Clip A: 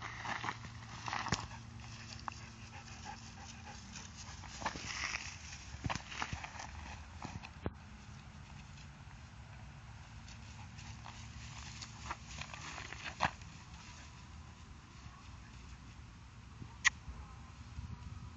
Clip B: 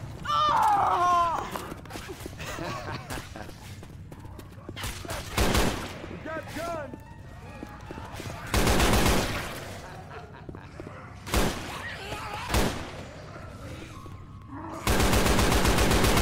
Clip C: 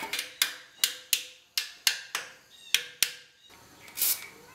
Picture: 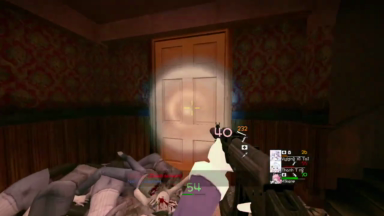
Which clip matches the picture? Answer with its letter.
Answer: B